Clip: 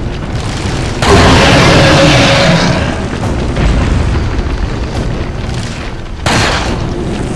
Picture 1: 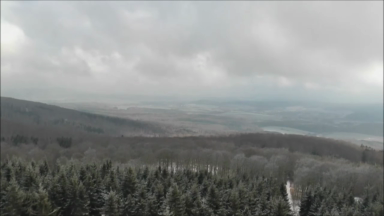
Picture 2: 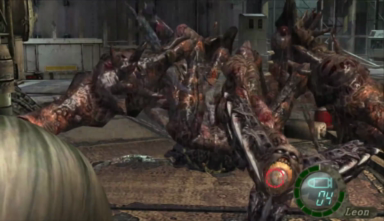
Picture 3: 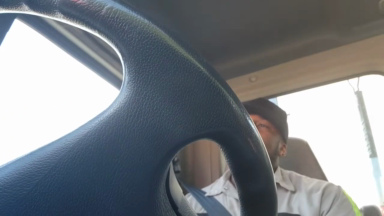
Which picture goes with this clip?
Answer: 2